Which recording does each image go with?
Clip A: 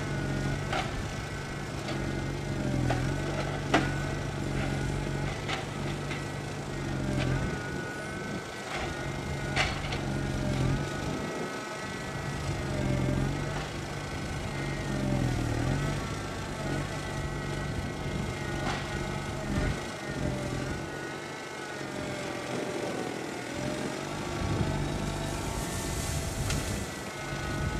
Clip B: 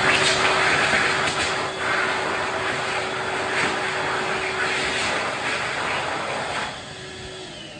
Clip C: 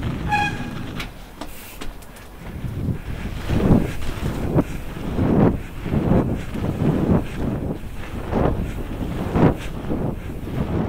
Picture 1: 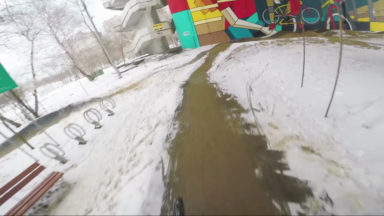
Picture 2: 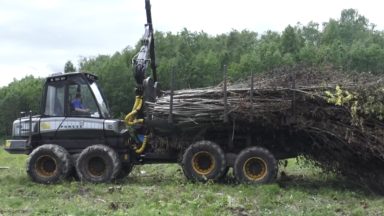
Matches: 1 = C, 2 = A